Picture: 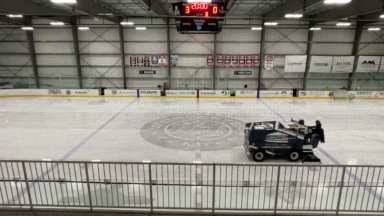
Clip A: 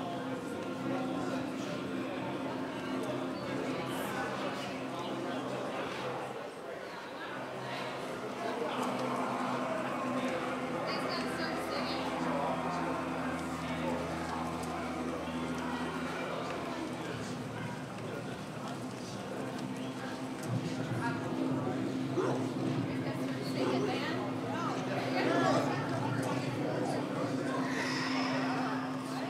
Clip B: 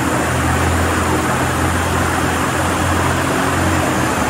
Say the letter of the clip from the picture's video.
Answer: B